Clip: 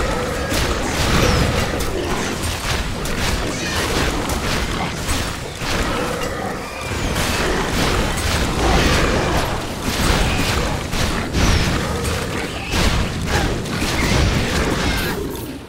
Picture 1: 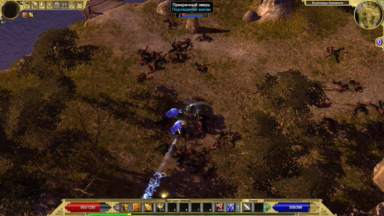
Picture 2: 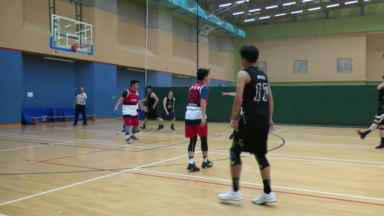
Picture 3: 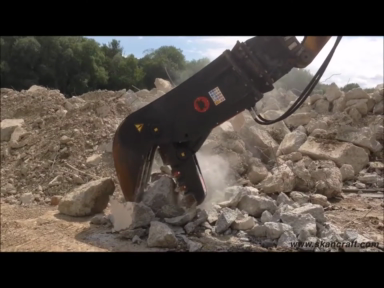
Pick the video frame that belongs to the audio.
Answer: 1